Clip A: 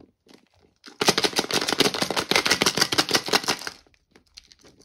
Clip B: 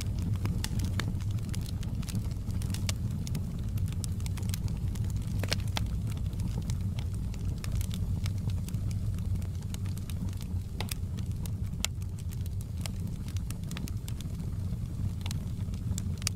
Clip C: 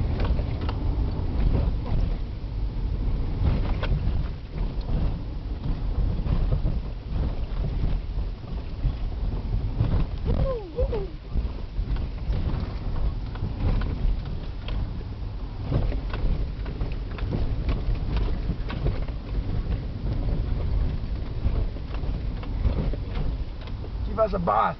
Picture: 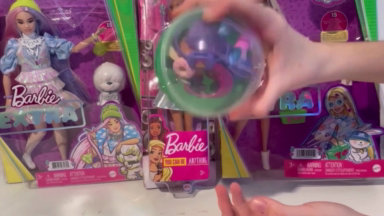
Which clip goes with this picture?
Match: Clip A